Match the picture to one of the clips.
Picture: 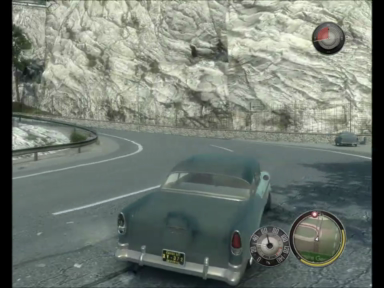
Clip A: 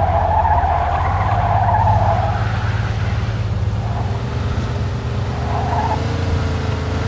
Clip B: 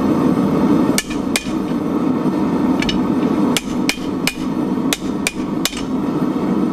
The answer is A